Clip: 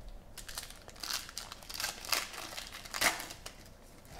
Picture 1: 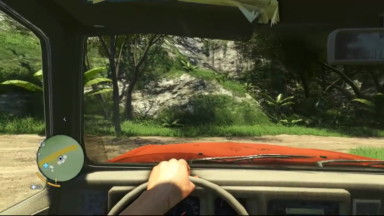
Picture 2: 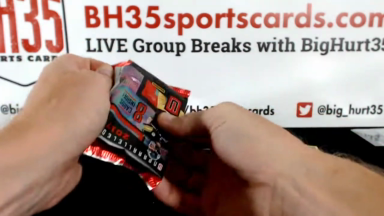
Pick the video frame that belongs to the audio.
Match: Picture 2